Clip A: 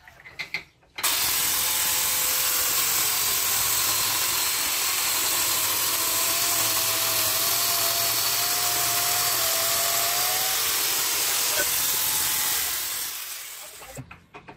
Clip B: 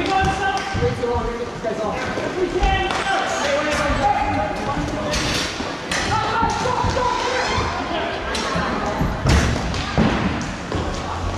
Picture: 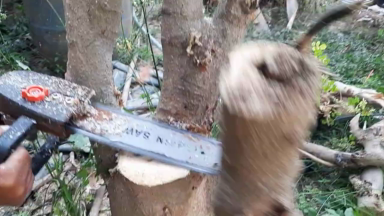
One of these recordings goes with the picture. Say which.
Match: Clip A